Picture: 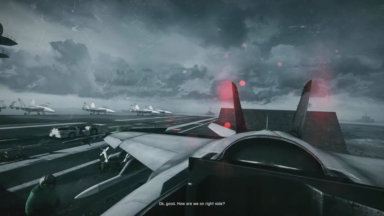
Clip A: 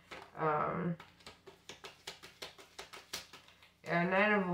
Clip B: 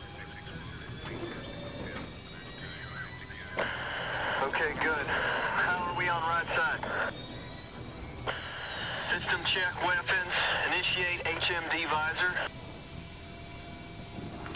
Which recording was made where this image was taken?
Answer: B